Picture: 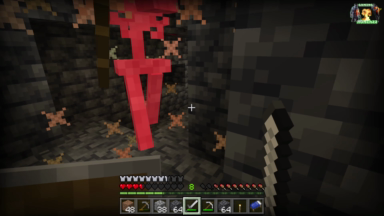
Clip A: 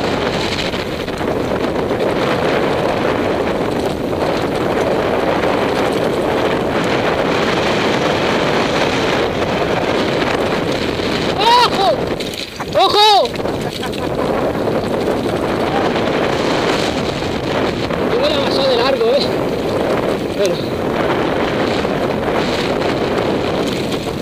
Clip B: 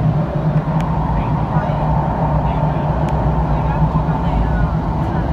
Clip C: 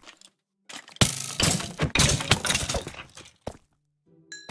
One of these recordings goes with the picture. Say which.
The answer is C